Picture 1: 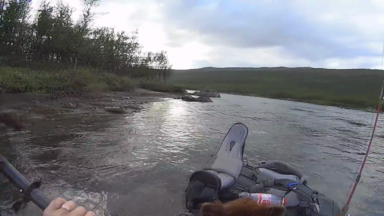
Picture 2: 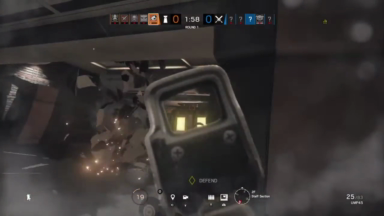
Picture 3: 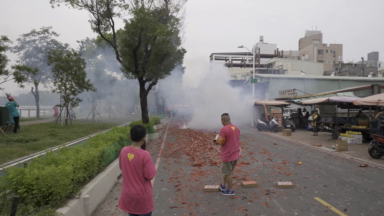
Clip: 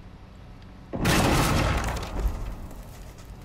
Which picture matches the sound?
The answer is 2